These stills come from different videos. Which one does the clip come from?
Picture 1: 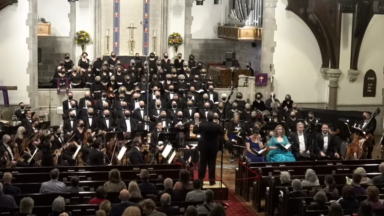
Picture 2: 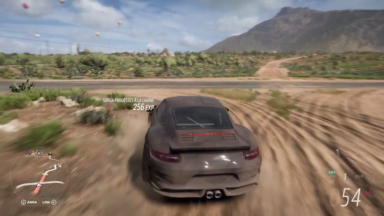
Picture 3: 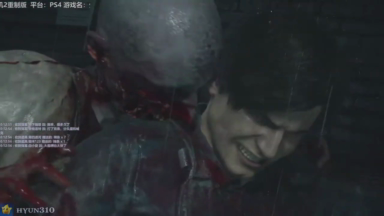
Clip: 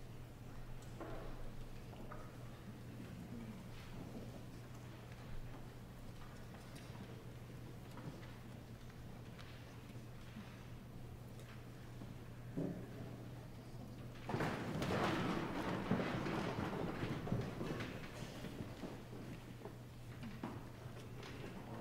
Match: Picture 1